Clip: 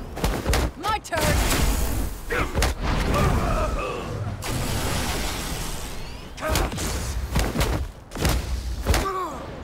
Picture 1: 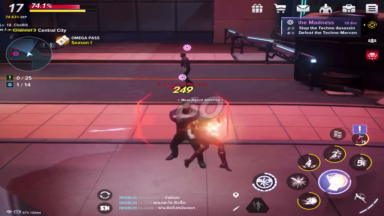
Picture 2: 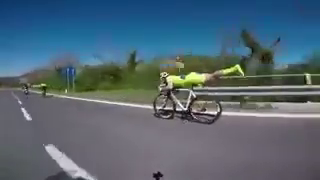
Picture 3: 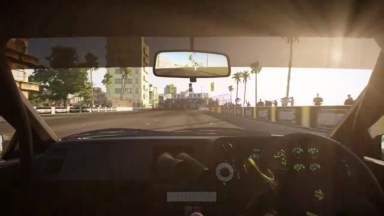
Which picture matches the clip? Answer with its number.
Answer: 1